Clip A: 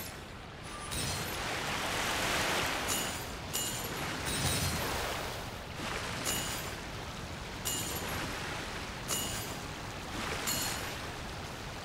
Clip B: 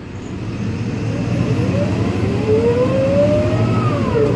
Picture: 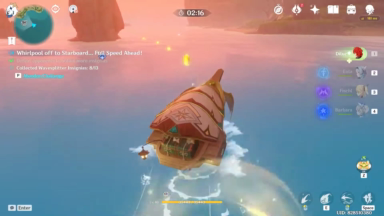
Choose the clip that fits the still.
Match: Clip A